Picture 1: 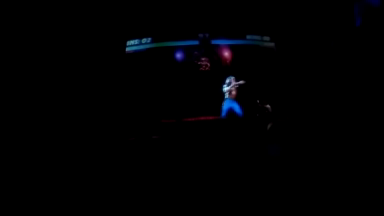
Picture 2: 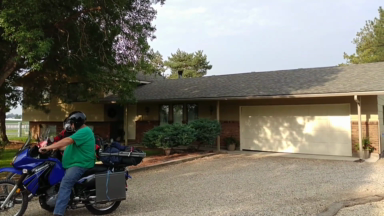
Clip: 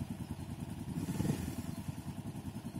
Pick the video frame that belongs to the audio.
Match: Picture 2